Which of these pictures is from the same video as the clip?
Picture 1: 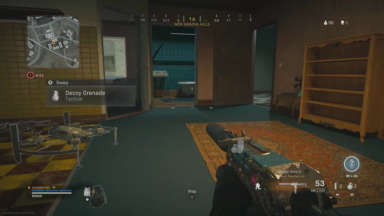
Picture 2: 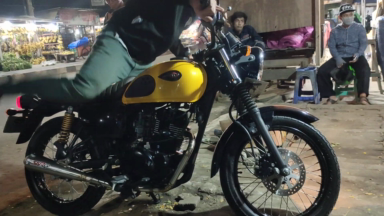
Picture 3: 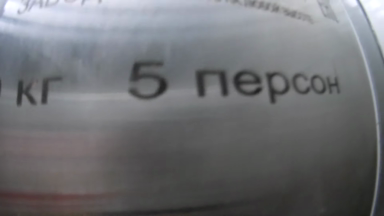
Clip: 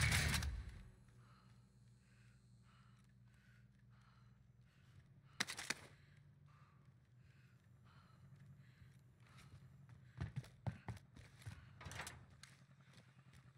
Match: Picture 1